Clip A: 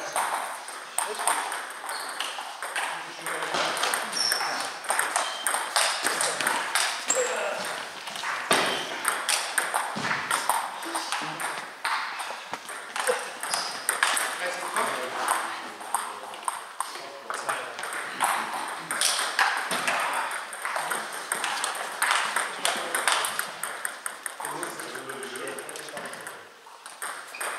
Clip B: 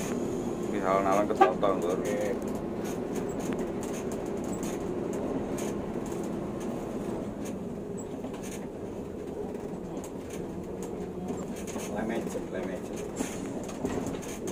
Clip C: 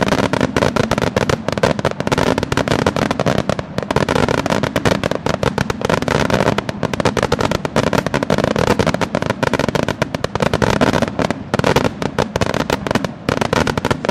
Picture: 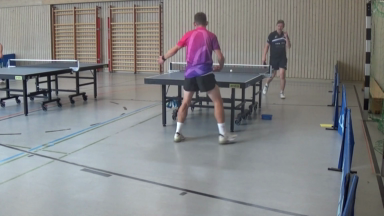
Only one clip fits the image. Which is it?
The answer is A